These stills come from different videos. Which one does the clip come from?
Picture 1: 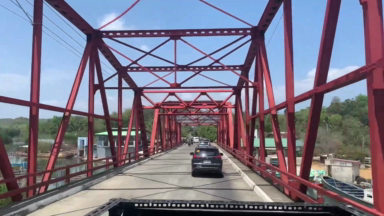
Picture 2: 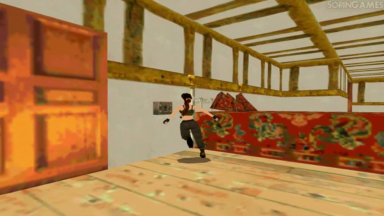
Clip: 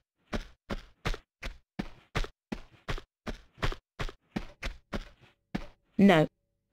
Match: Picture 2